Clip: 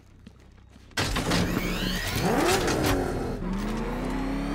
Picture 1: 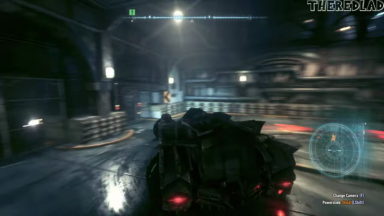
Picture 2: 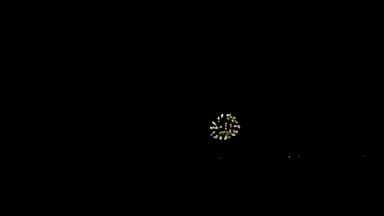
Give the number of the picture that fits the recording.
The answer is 1